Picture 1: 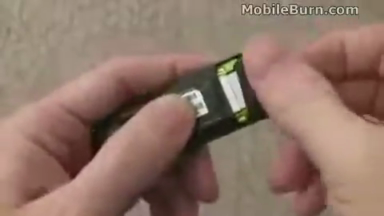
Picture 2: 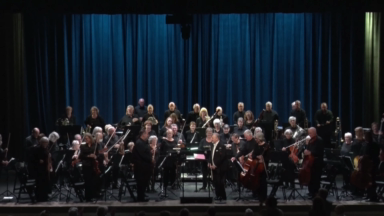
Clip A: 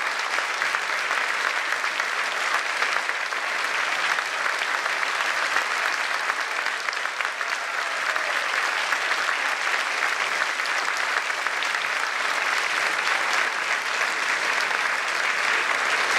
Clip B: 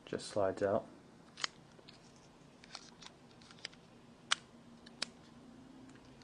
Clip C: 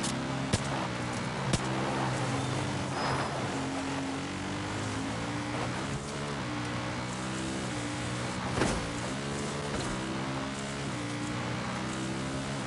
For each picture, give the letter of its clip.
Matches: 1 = B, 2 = A